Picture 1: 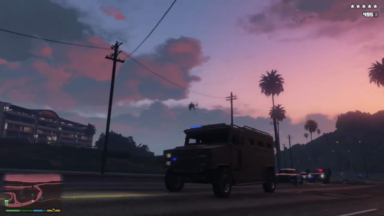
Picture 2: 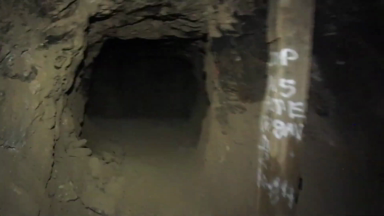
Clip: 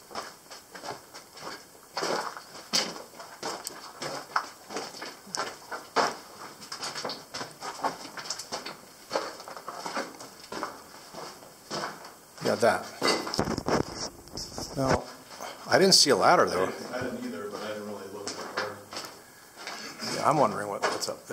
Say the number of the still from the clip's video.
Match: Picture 2